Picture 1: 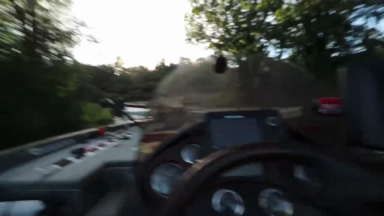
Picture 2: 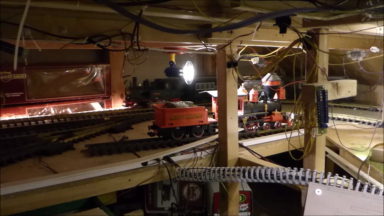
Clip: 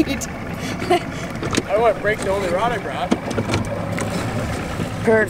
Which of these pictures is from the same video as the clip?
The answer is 1